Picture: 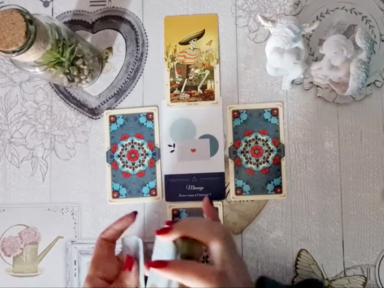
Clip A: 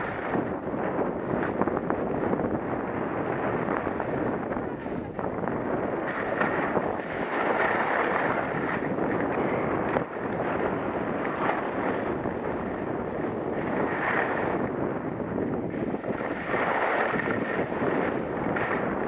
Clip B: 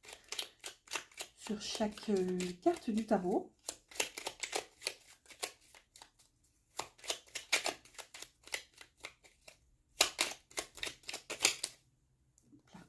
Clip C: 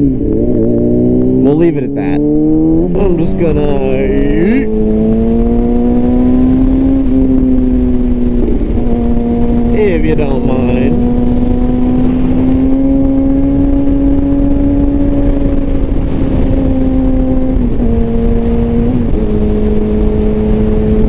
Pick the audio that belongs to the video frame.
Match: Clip B